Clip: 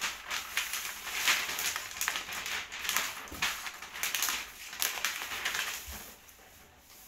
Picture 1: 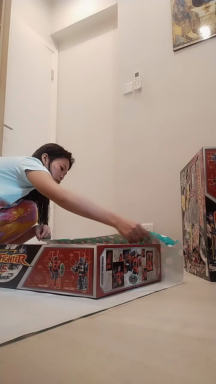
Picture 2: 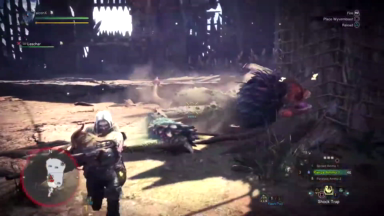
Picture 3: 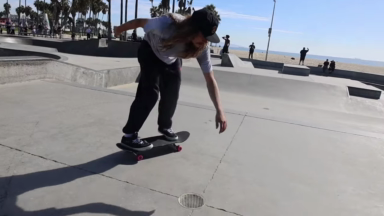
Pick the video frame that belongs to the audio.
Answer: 1